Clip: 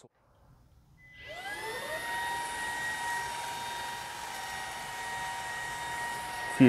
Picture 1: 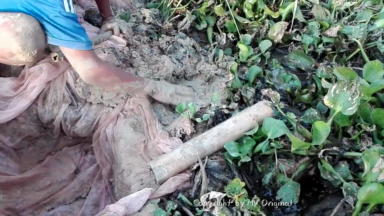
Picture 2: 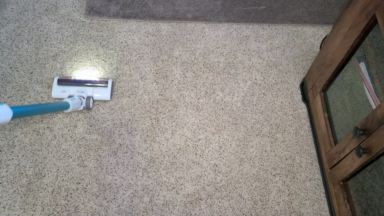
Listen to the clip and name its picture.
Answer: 2